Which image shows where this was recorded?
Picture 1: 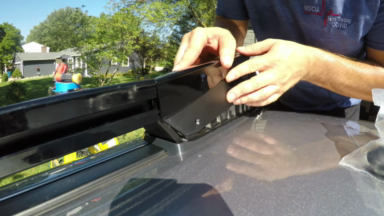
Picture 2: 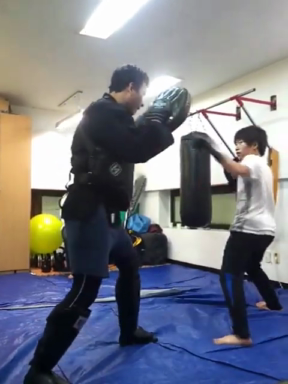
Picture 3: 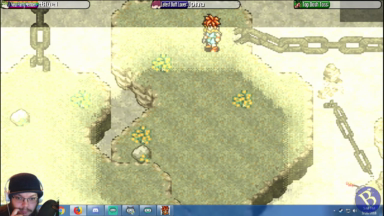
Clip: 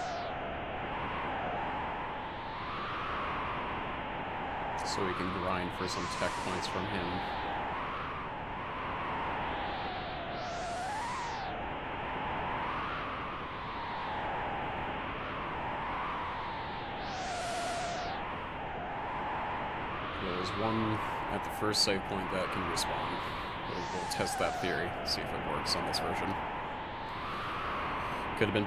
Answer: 3